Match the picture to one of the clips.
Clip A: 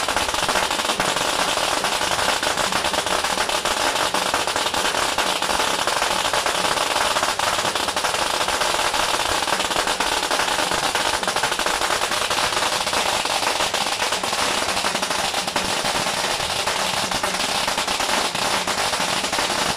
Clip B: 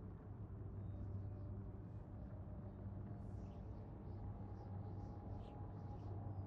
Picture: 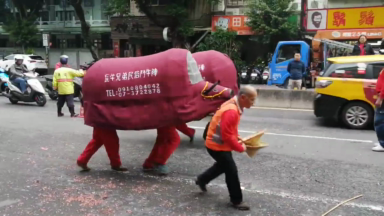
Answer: A